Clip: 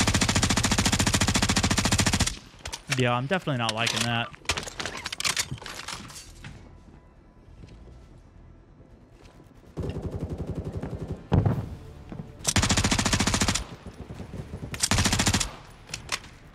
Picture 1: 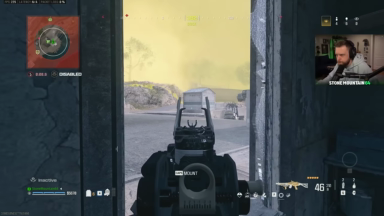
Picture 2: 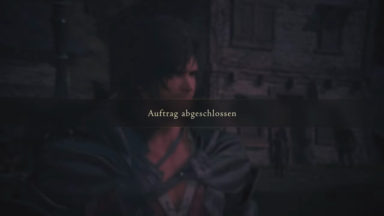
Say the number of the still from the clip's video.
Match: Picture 1